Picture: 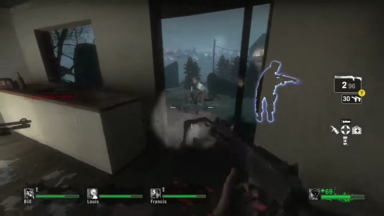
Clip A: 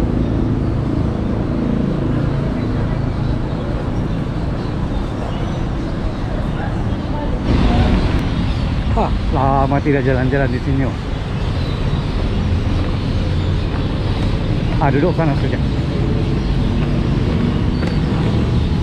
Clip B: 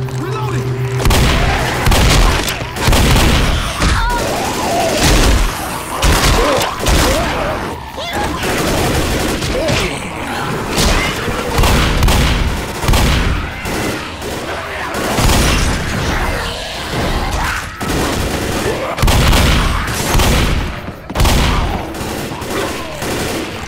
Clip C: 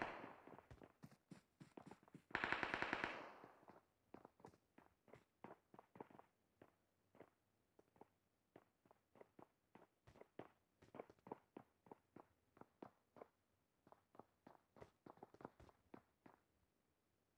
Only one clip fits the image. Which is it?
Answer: B